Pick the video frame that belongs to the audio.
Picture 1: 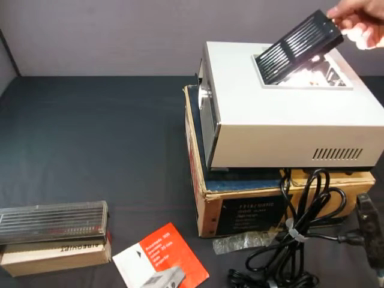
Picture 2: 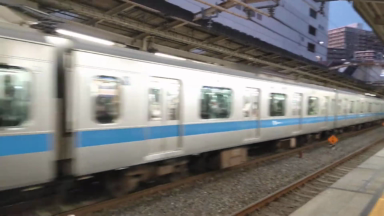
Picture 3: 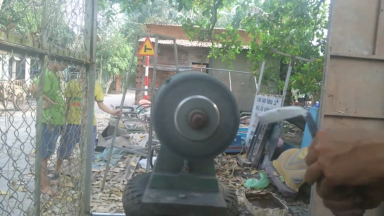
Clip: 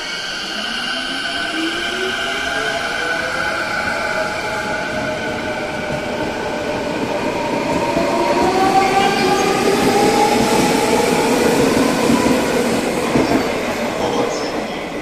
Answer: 2